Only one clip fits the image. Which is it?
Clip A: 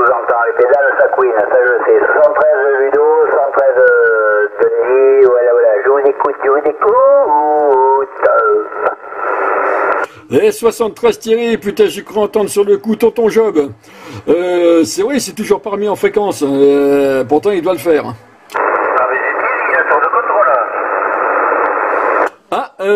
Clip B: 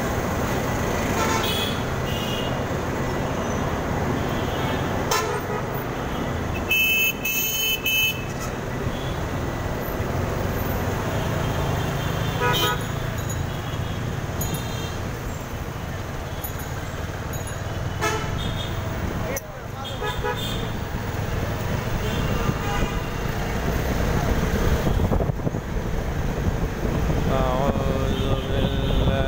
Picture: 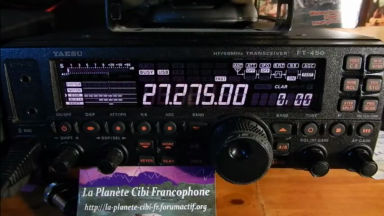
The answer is A